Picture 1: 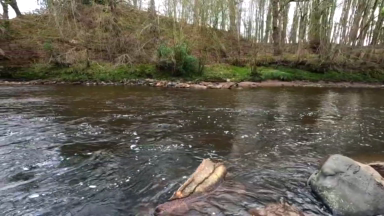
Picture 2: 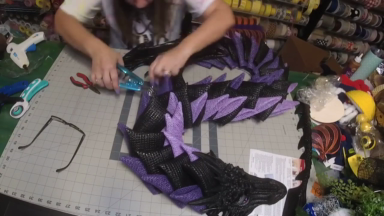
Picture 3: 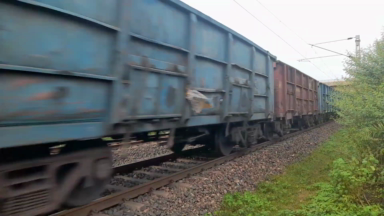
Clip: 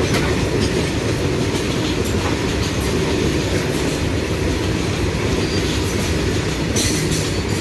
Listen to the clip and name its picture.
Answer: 3